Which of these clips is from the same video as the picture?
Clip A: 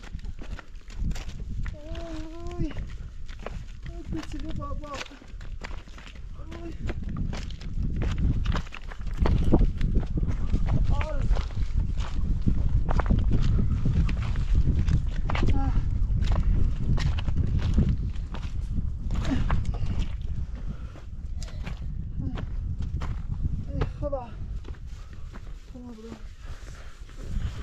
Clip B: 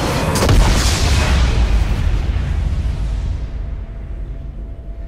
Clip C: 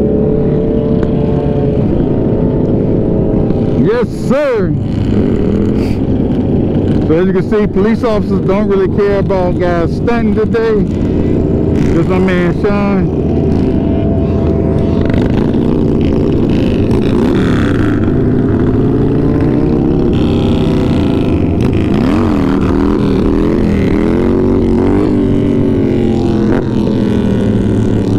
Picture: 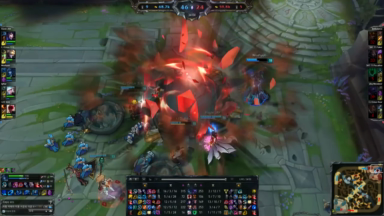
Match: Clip B